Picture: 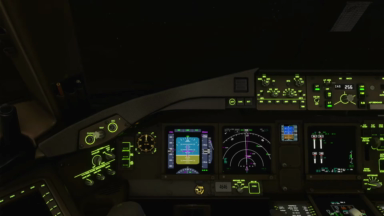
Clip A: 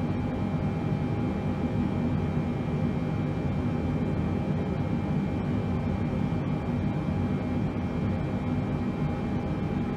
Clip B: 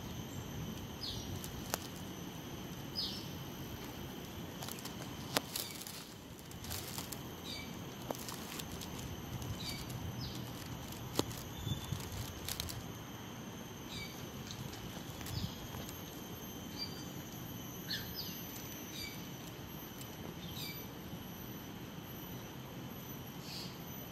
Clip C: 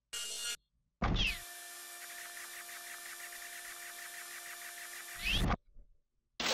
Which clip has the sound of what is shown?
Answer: A